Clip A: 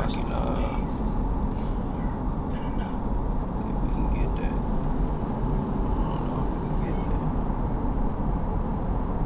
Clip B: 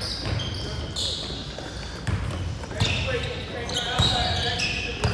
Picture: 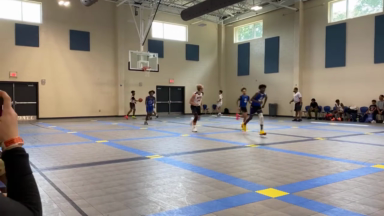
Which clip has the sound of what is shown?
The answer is B